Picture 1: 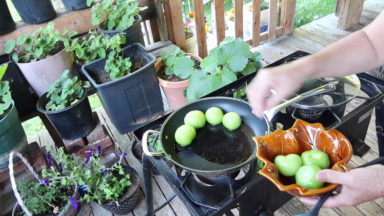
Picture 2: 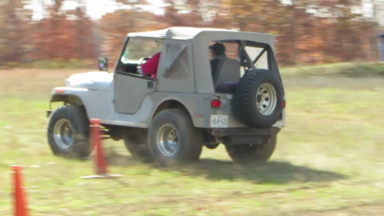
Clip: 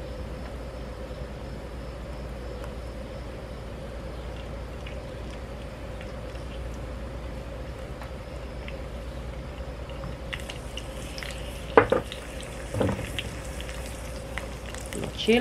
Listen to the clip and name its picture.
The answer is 1